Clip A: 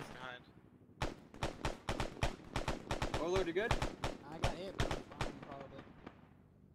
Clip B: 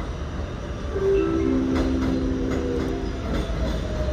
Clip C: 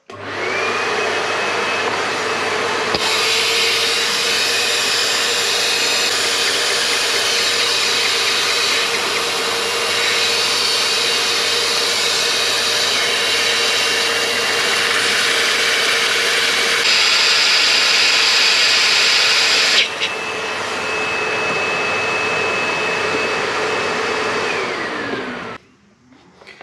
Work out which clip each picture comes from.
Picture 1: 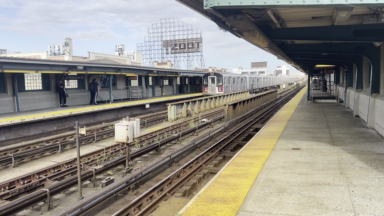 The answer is B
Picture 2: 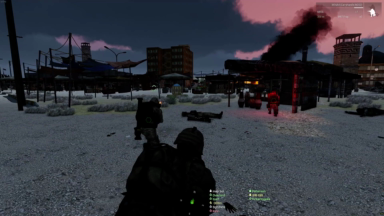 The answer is A